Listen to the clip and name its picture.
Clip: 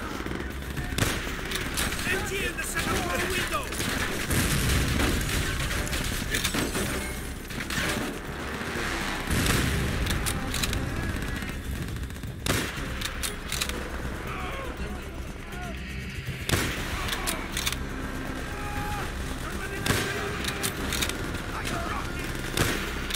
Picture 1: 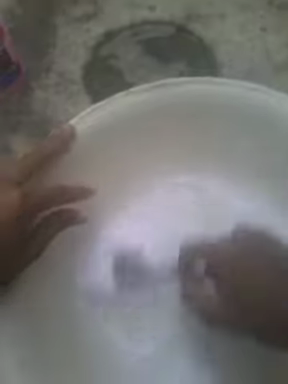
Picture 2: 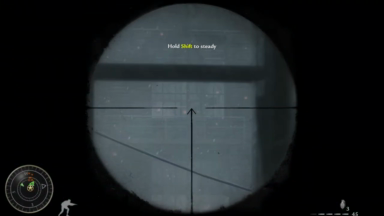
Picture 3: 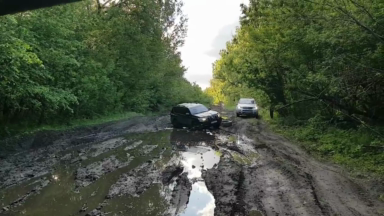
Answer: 2